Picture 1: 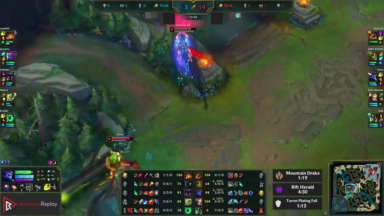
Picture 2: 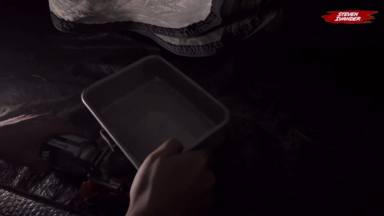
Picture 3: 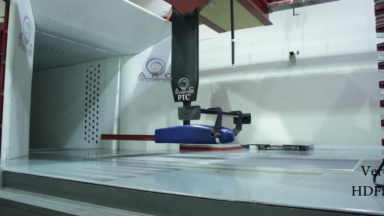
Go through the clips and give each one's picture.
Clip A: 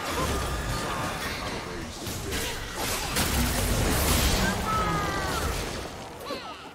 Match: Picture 1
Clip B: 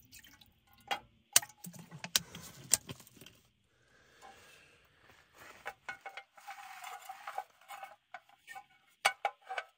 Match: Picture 2